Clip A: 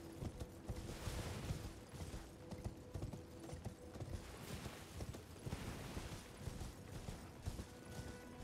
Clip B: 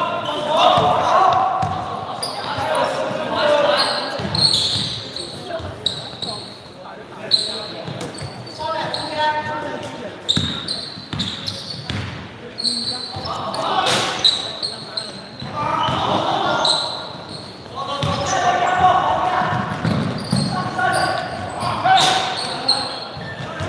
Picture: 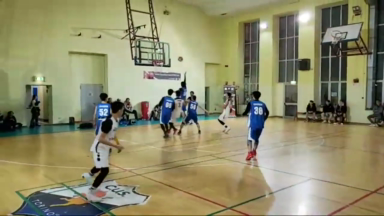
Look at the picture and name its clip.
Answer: B